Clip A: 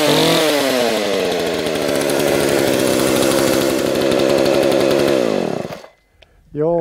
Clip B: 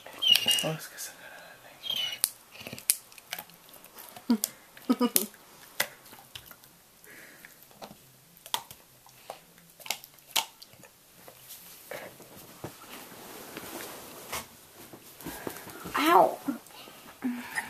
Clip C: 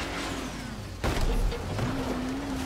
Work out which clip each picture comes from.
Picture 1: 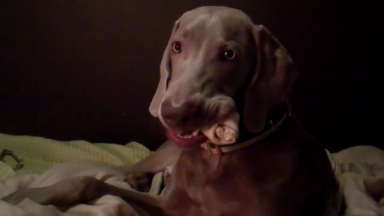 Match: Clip B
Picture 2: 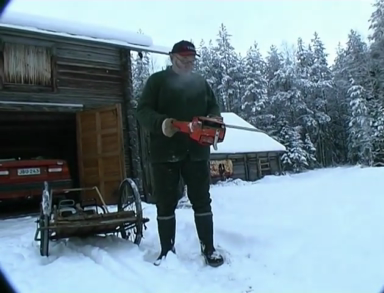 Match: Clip A